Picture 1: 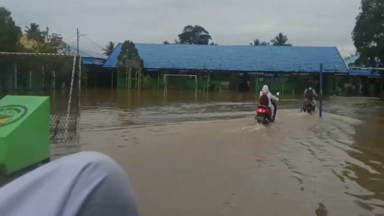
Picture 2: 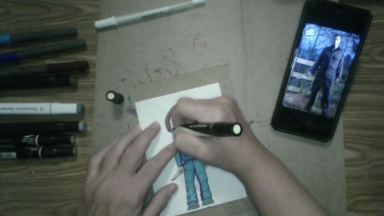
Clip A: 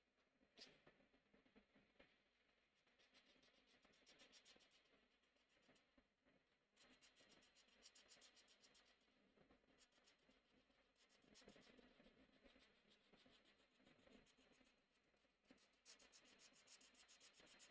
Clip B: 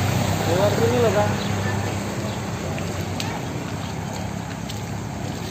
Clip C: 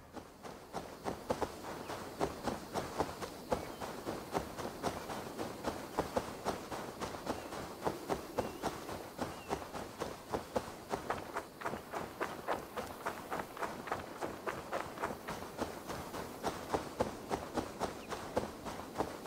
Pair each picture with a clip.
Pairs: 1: B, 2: A